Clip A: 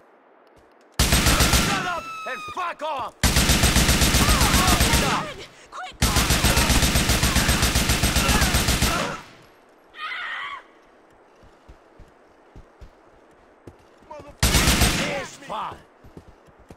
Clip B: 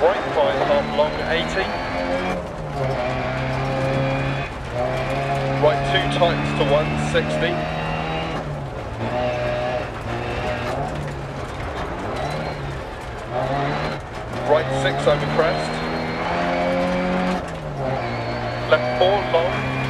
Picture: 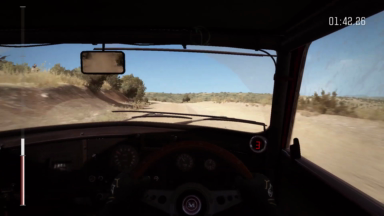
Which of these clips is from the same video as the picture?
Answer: B